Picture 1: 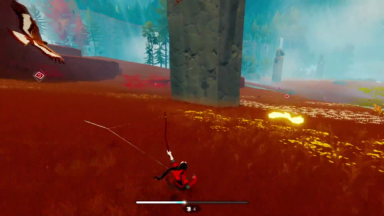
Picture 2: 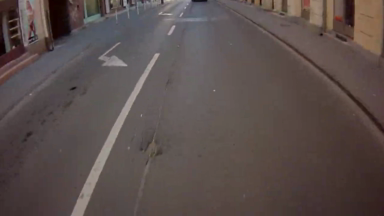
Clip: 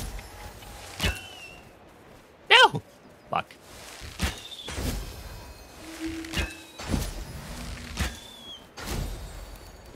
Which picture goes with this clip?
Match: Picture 1